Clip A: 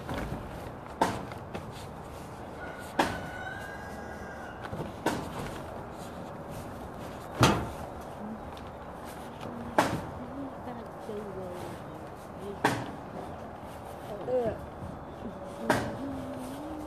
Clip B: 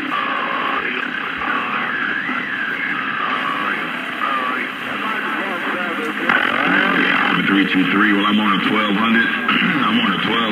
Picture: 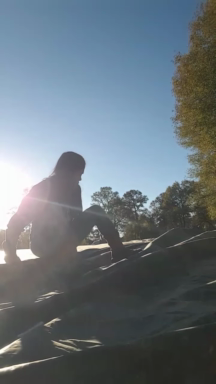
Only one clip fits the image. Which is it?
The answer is A